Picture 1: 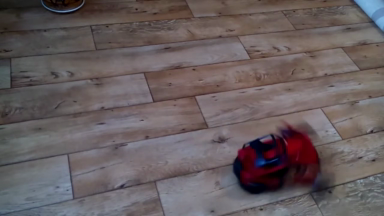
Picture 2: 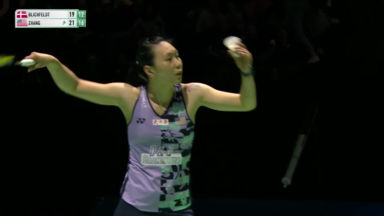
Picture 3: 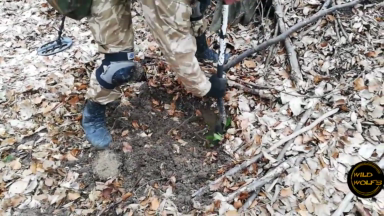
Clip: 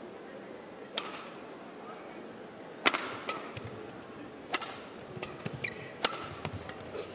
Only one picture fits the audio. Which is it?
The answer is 2